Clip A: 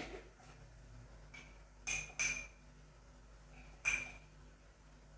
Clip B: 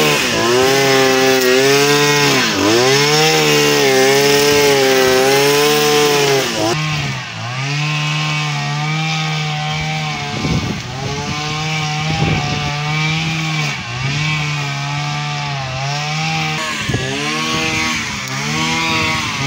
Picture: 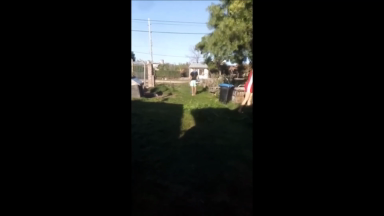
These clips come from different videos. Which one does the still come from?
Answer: B